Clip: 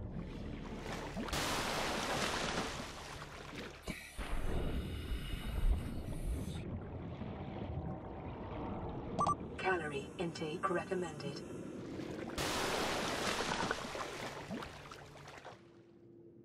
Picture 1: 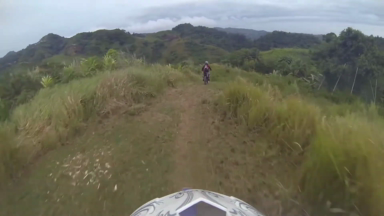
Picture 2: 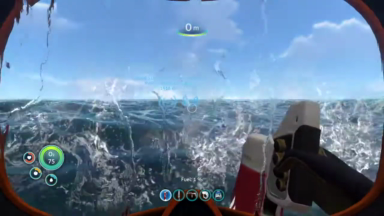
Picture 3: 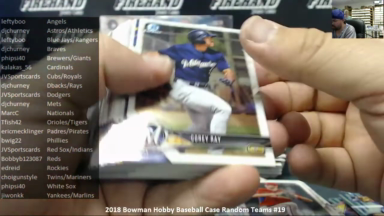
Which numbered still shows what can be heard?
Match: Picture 2